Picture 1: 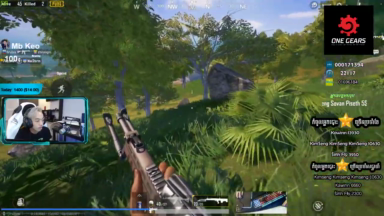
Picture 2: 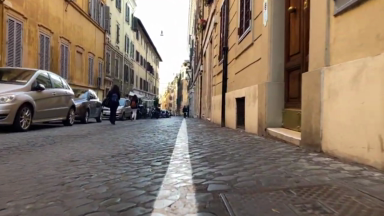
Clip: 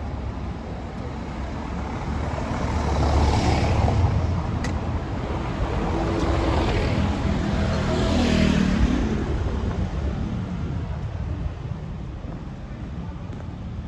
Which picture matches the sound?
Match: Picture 2